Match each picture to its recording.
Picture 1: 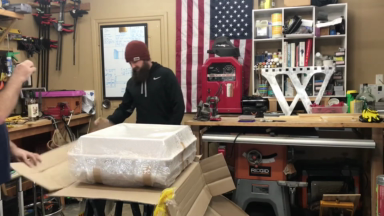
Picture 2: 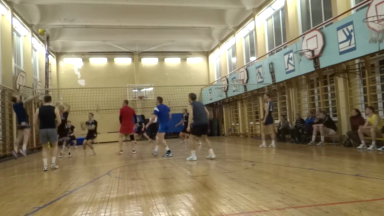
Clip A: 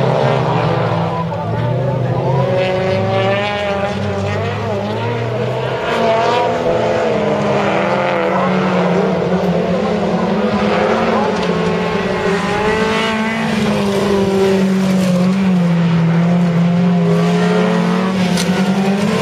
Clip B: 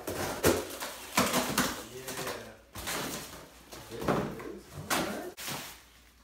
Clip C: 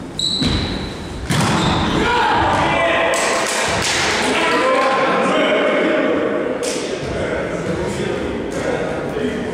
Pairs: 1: B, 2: C